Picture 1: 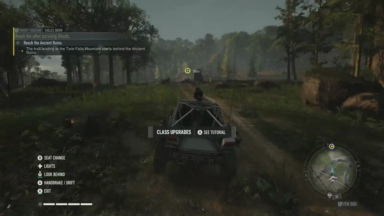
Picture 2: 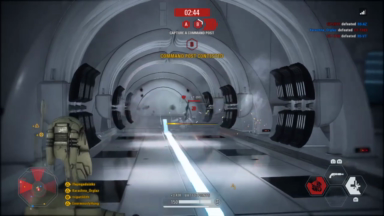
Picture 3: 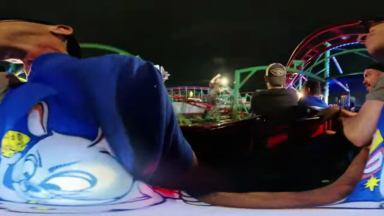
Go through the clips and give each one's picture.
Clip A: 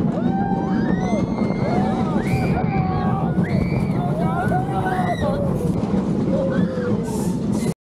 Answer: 3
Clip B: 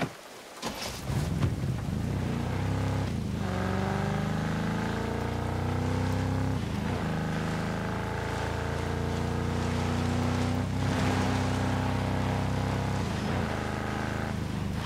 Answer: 1